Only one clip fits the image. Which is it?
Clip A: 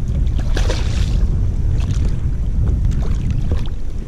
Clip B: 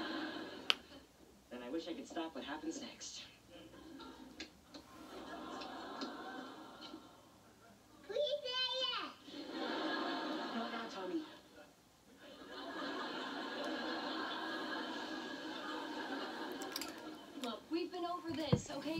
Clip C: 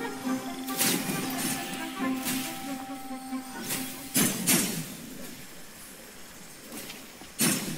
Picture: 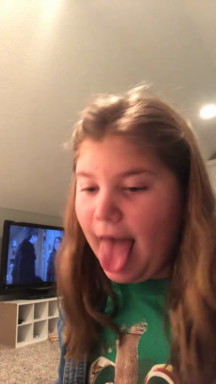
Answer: B